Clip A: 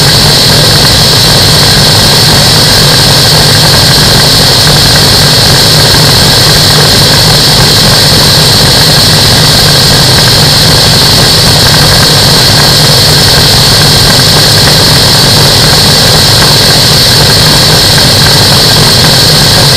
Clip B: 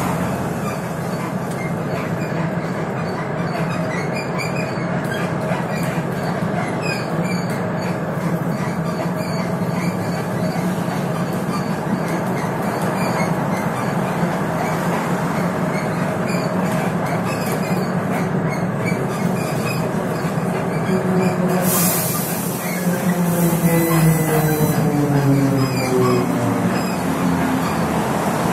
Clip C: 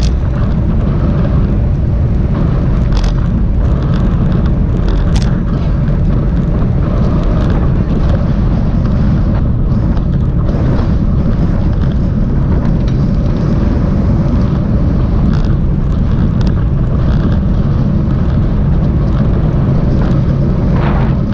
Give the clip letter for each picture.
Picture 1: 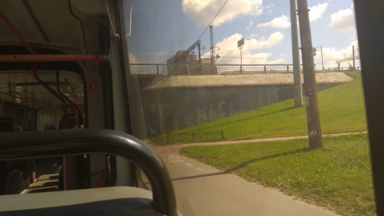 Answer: B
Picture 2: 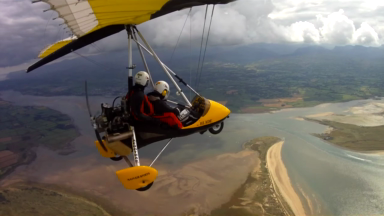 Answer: A